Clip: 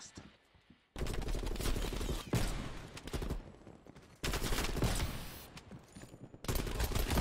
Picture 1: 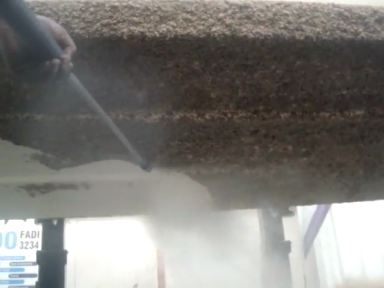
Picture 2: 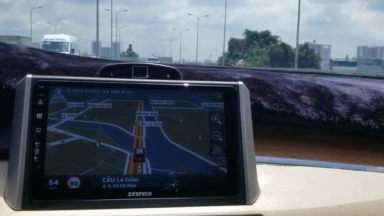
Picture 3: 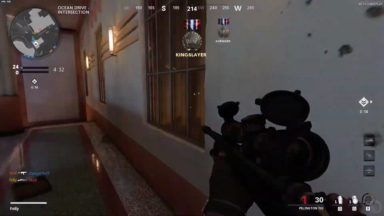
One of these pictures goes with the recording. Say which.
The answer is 3